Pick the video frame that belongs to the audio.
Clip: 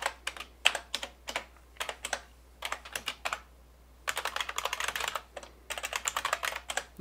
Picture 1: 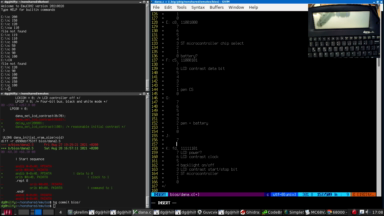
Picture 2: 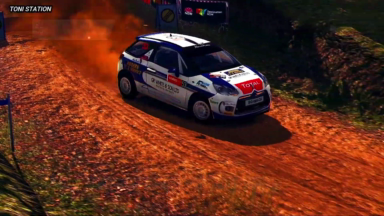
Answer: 1